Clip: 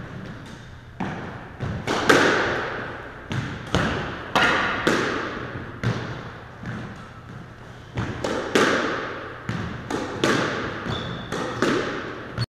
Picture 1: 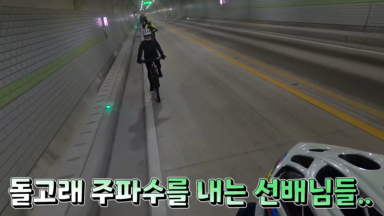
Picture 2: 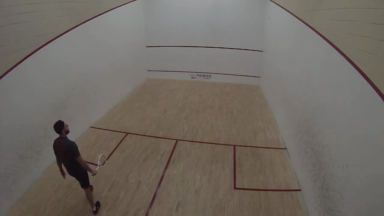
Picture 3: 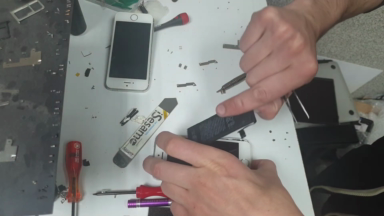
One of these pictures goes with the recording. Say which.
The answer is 2